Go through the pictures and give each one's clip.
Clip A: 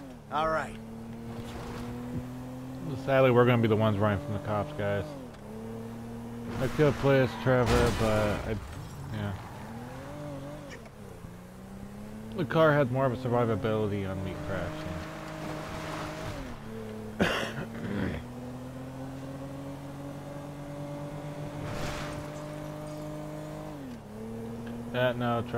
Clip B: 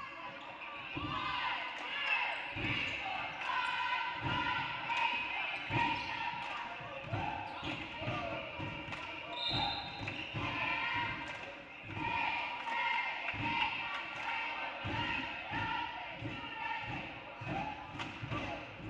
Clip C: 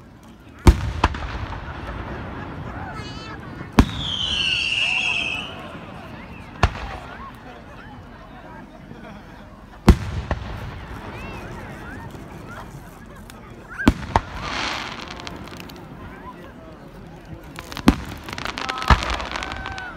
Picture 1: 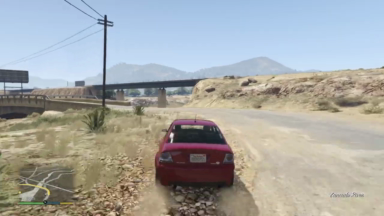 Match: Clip A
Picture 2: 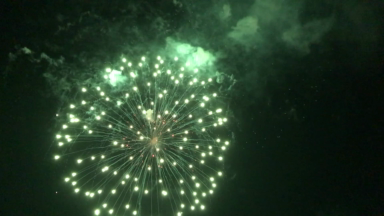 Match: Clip C